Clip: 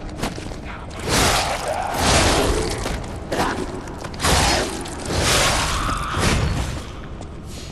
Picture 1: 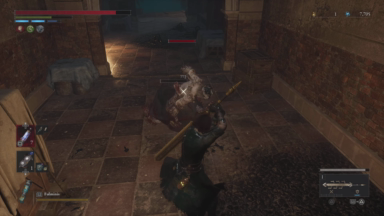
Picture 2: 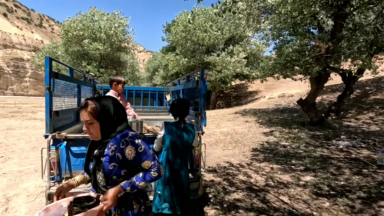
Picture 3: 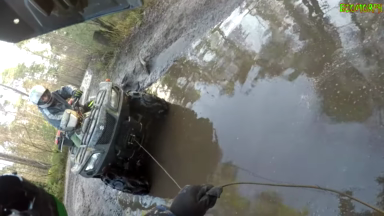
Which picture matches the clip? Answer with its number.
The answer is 1